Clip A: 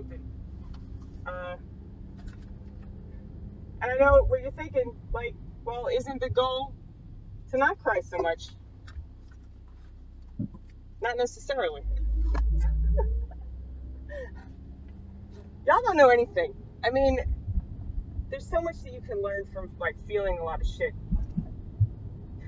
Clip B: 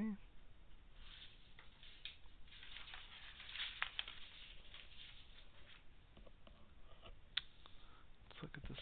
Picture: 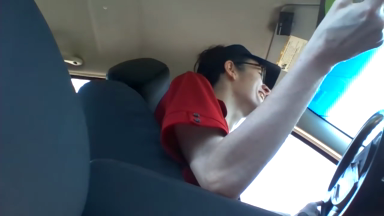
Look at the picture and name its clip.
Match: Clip A